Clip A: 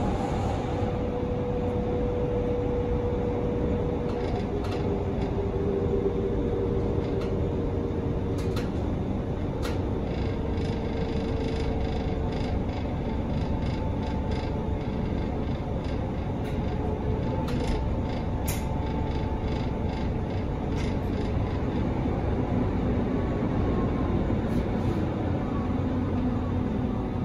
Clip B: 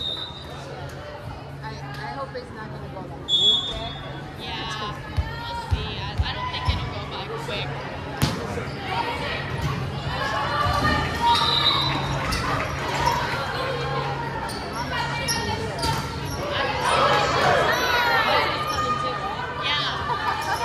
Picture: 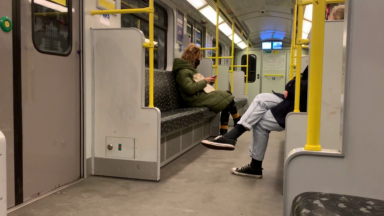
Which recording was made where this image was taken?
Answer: A